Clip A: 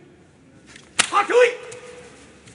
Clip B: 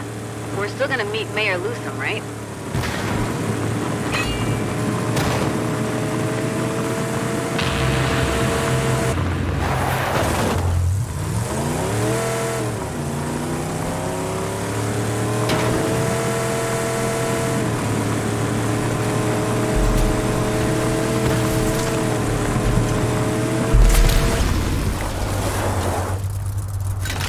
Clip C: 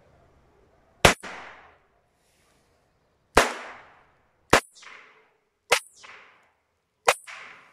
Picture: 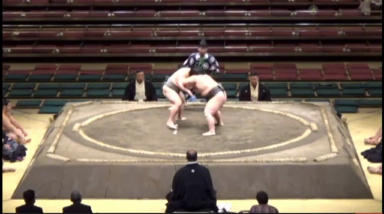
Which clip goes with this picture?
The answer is A